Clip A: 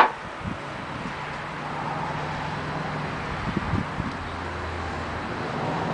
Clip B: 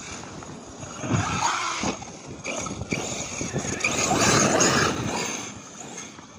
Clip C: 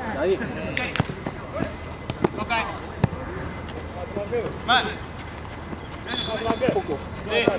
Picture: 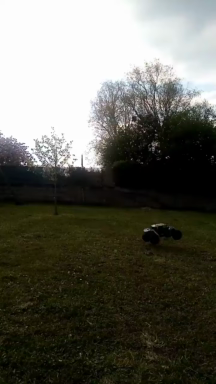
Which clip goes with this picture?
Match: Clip B